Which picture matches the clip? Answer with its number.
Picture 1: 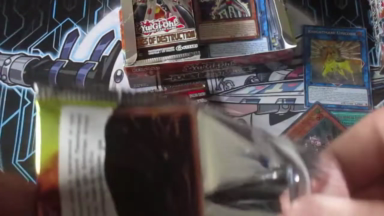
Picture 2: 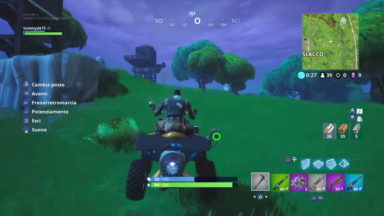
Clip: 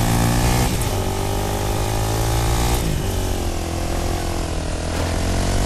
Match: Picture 2